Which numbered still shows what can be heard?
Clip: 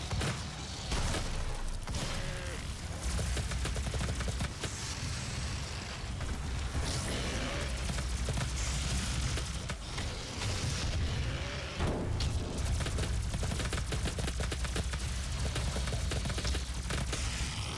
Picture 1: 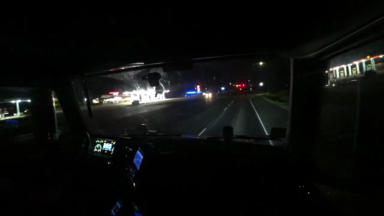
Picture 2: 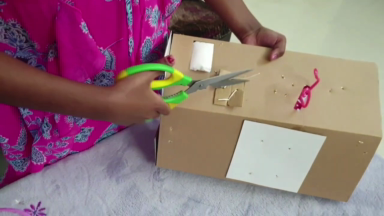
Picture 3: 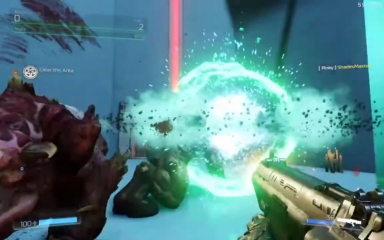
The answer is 3